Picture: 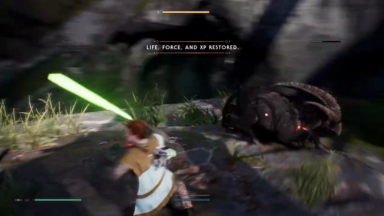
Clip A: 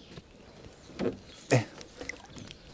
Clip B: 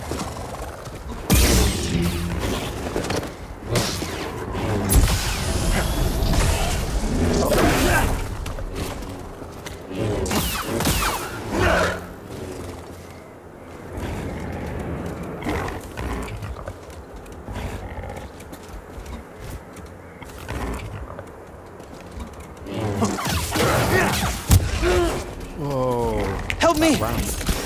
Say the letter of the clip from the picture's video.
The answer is B